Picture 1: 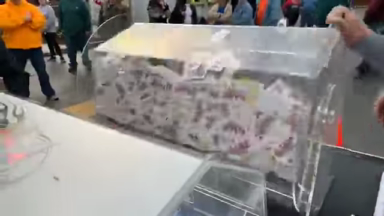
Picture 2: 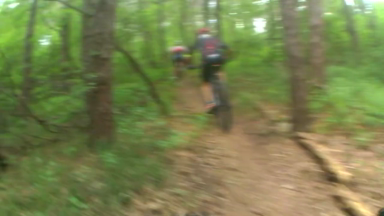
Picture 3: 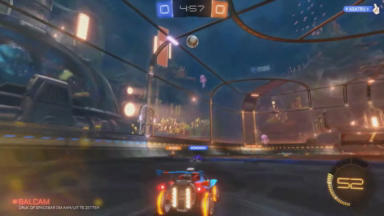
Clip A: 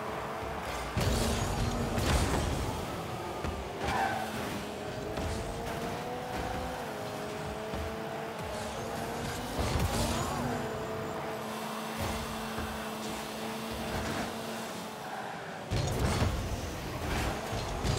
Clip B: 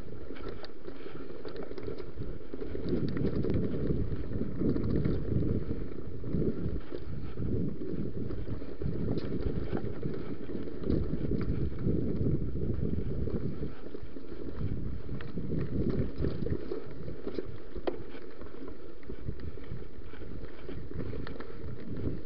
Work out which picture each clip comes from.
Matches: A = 3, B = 2